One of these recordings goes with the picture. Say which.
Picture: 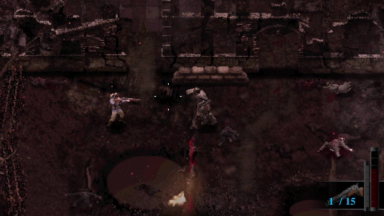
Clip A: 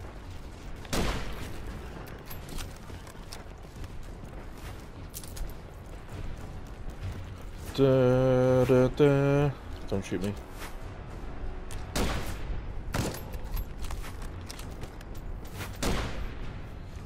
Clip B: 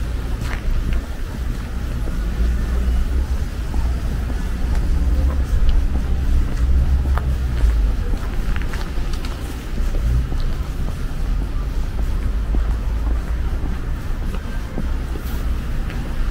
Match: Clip A